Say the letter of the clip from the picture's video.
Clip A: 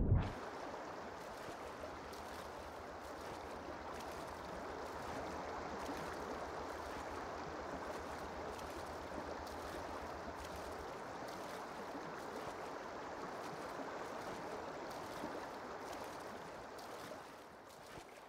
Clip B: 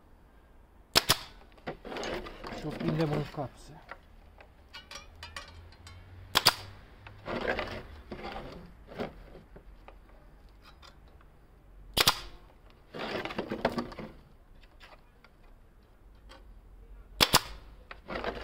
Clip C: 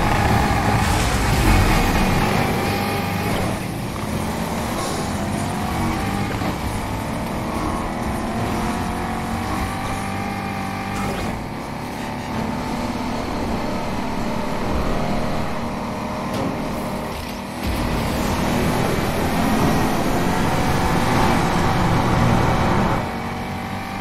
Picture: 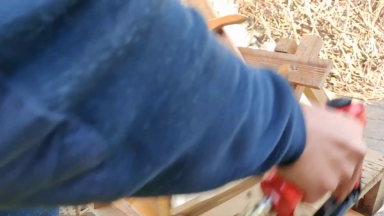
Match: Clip B